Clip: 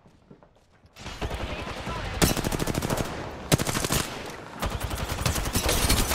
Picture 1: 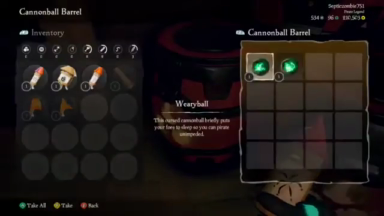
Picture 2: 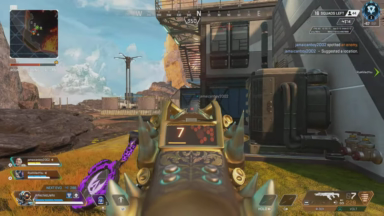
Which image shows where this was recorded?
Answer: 2